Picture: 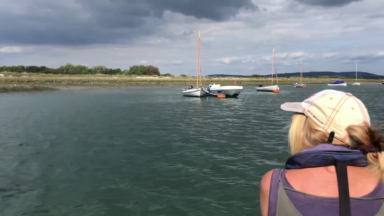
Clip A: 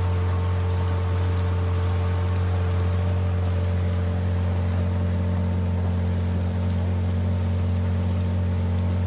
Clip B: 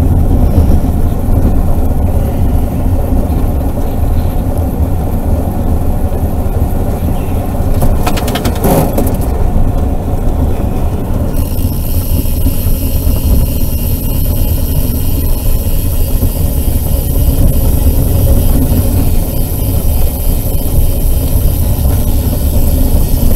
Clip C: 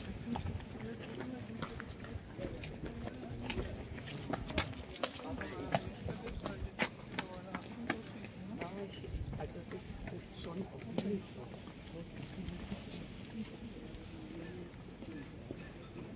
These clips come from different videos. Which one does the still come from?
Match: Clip A